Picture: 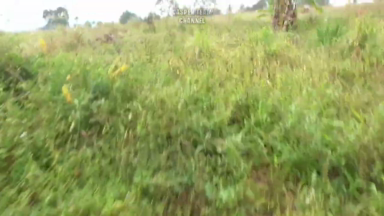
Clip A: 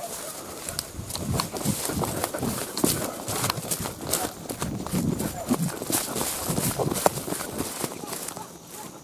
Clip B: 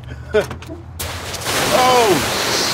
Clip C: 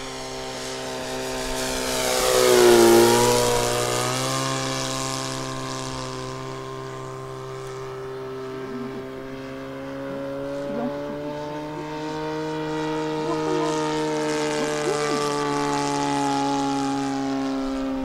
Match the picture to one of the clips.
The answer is A